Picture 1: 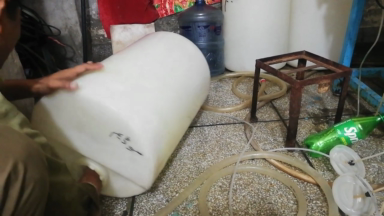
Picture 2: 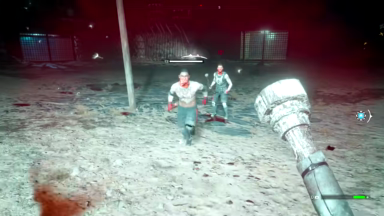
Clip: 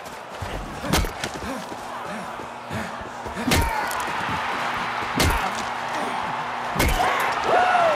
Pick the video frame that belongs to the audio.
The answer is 2